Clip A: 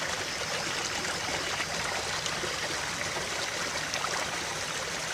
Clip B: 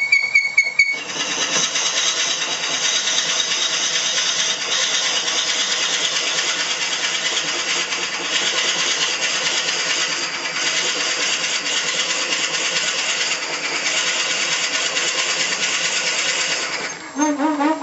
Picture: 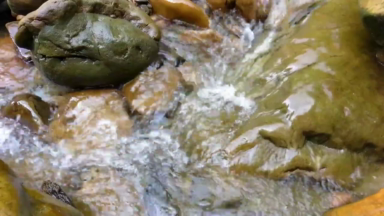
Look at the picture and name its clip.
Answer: A